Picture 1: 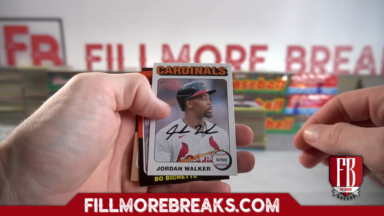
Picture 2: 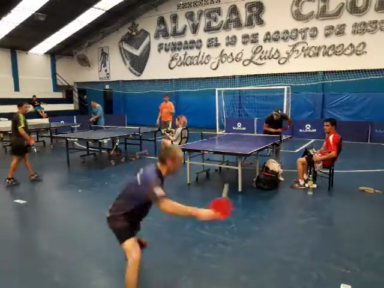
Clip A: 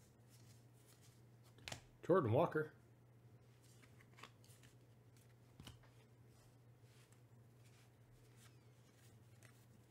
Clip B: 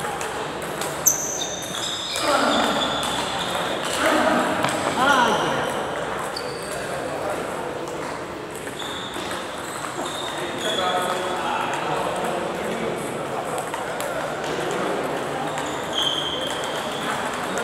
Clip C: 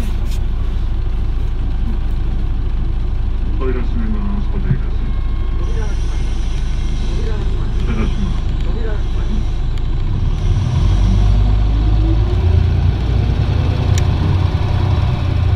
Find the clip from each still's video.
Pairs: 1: A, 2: B